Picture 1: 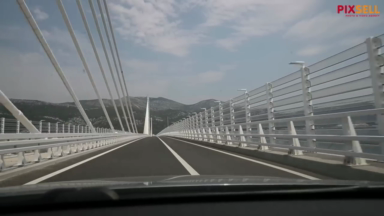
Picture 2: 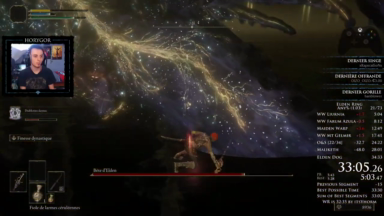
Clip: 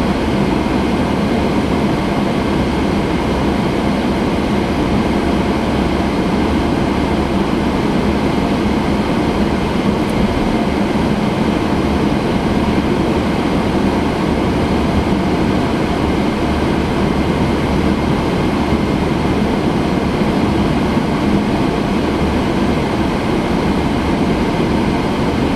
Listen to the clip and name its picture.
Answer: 1